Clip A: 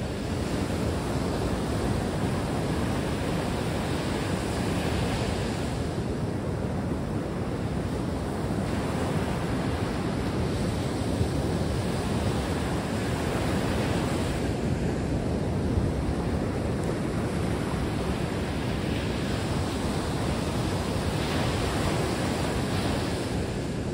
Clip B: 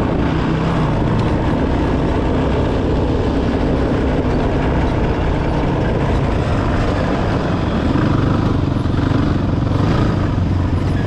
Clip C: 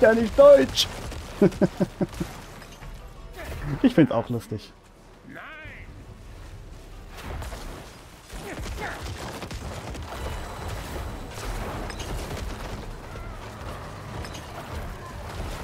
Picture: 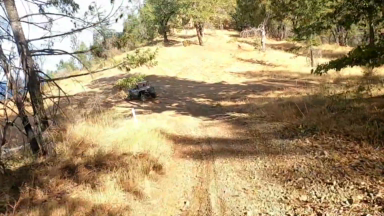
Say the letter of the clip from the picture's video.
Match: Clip B